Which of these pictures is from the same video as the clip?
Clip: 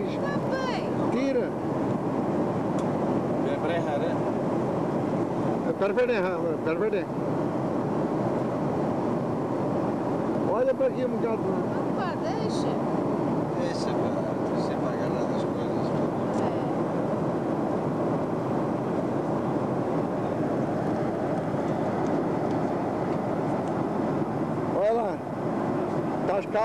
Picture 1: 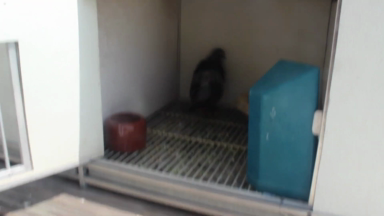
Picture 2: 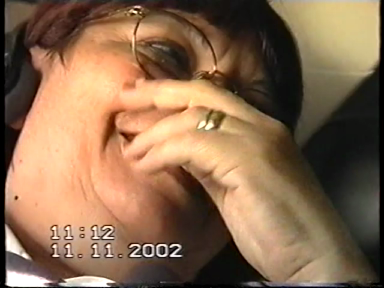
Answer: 2